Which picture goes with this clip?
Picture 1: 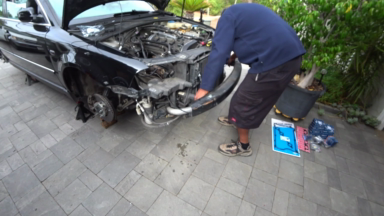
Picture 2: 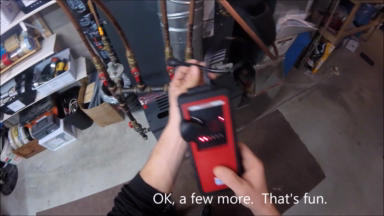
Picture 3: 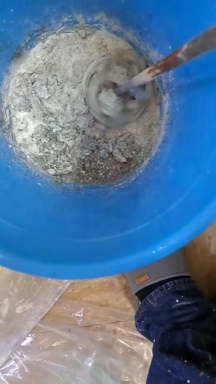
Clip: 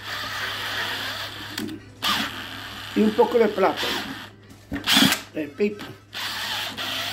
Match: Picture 3